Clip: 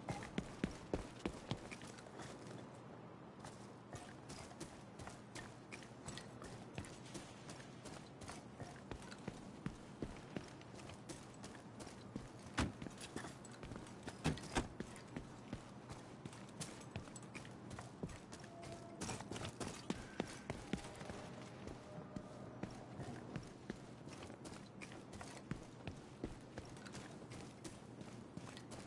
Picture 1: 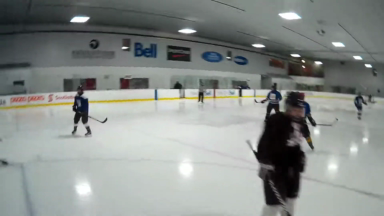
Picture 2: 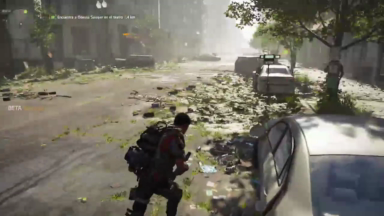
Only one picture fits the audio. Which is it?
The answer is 2